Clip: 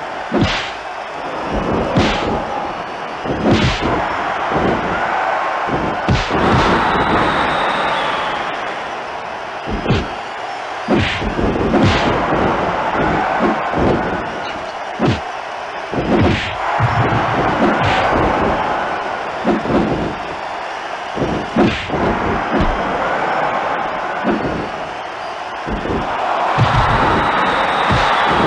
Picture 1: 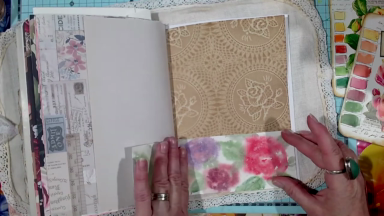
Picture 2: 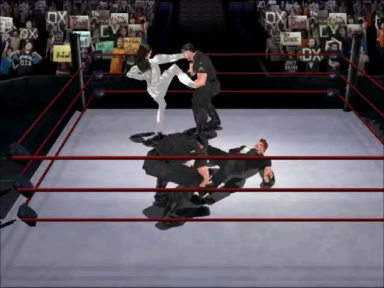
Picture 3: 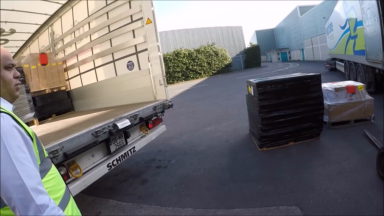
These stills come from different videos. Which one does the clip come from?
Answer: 2